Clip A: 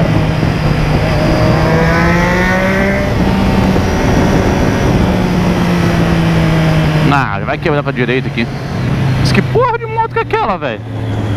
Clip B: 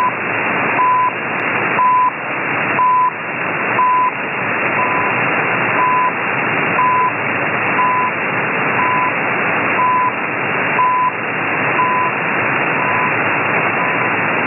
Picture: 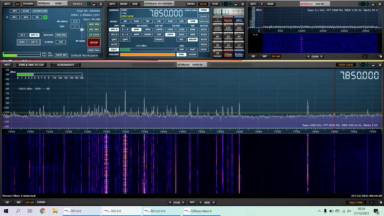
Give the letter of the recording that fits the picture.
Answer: B